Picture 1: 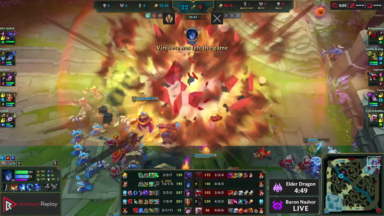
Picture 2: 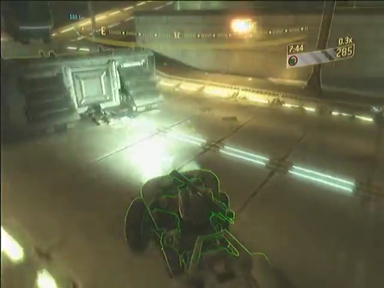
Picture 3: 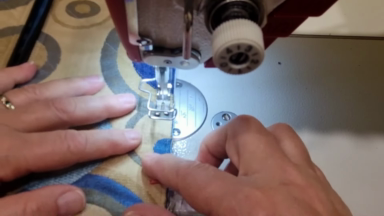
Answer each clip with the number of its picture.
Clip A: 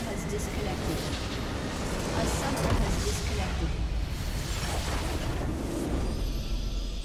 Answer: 1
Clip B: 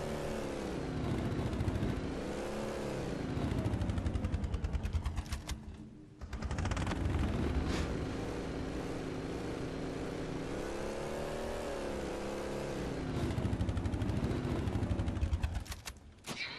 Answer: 2